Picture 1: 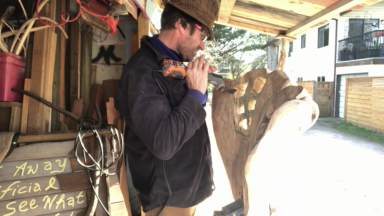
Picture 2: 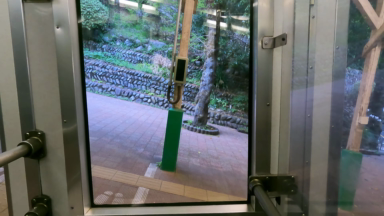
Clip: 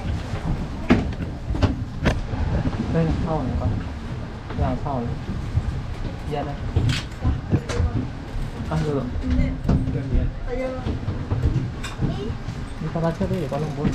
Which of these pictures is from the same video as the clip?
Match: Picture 2